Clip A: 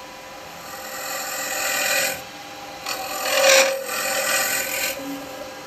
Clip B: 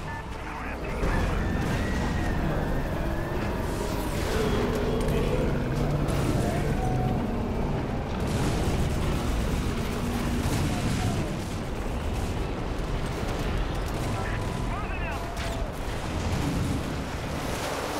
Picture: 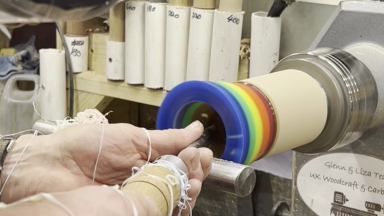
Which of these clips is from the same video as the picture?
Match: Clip A